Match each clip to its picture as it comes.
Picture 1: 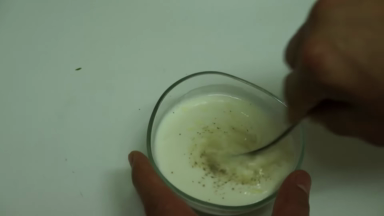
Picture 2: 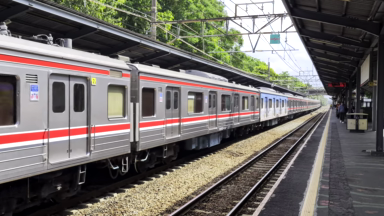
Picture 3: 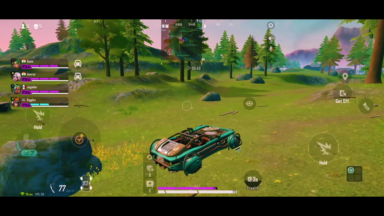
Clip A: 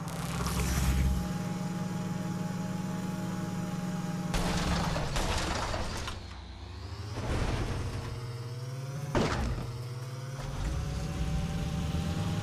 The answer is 3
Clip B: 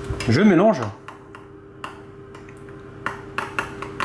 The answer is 1